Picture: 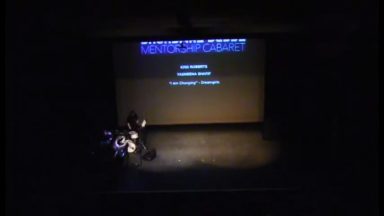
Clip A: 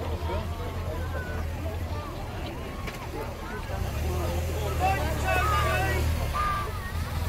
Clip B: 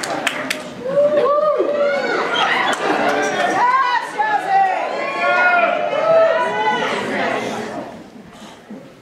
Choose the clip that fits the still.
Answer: B